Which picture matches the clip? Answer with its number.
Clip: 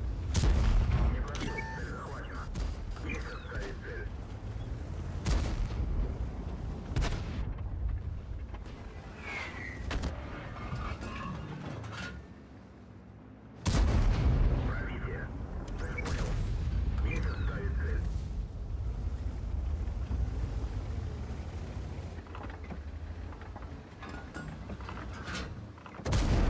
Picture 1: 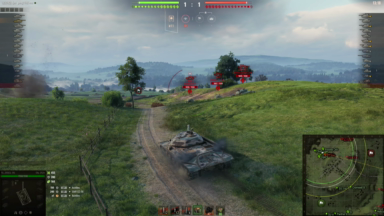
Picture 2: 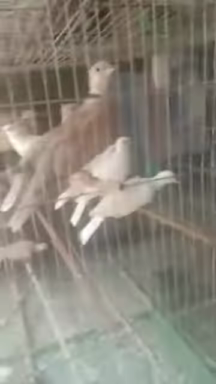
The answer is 1